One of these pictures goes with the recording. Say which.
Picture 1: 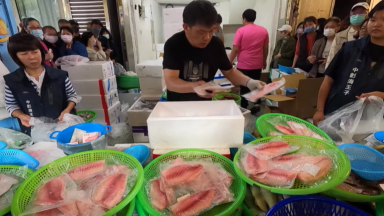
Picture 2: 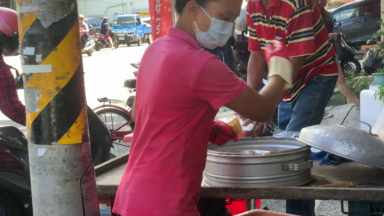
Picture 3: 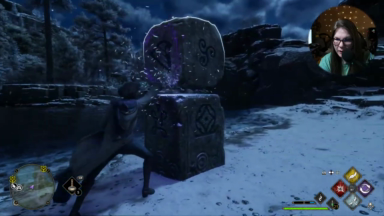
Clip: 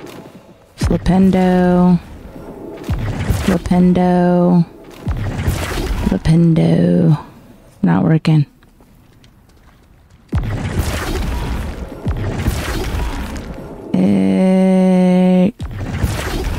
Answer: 3